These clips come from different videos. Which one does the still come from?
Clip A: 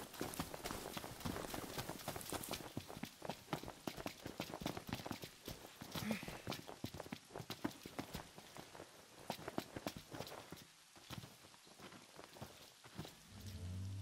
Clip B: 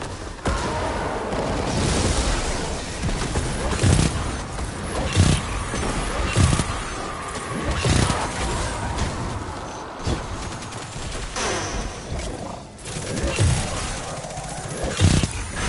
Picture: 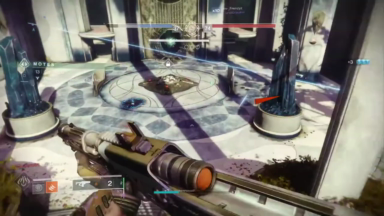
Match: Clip B